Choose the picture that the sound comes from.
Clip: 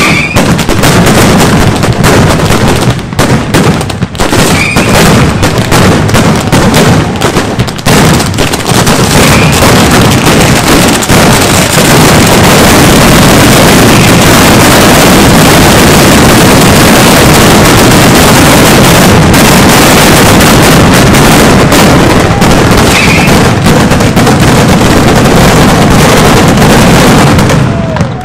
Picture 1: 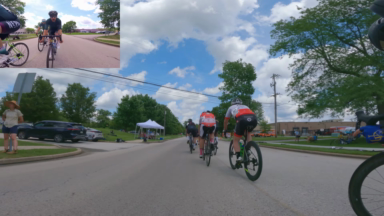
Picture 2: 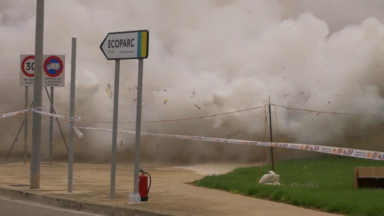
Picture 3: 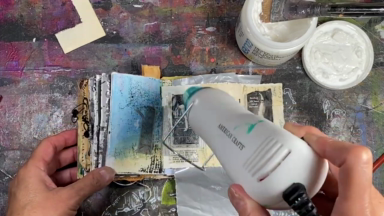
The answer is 2